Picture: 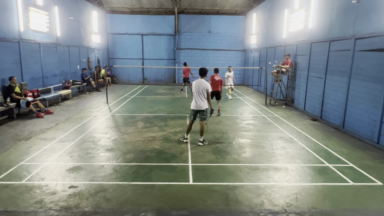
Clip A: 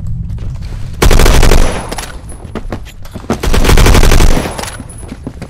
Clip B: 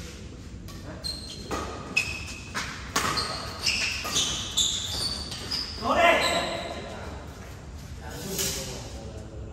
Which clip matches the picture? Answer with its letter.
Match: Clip B